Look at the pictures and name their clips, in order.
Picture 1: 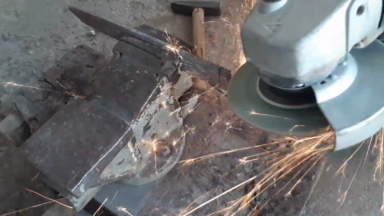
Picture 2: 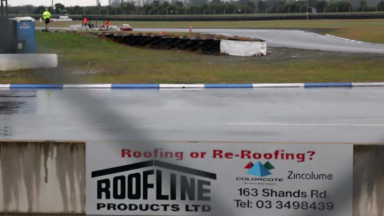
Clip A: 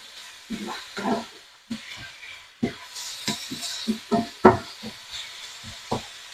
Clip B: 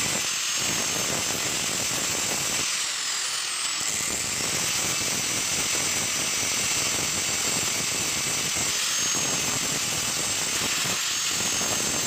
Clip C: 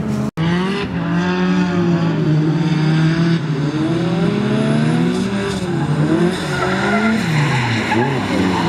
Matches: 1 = B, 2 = C